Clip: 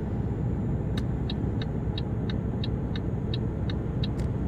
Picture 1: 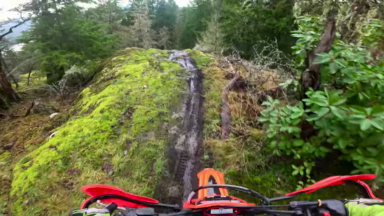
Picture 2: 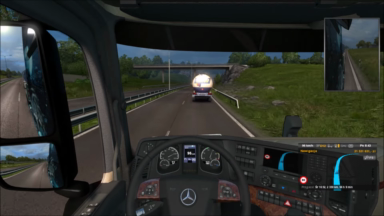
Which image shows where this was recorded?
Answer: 2